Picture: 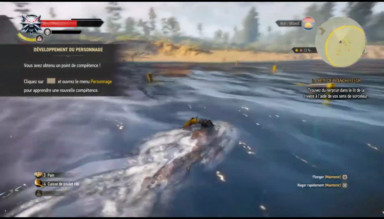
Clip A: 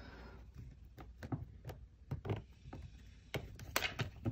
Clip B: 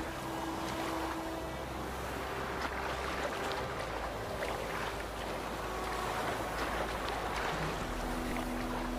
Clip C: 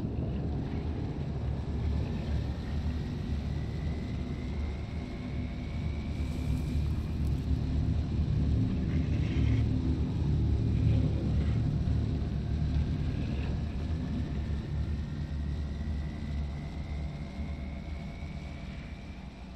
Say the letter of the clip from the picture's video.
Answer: B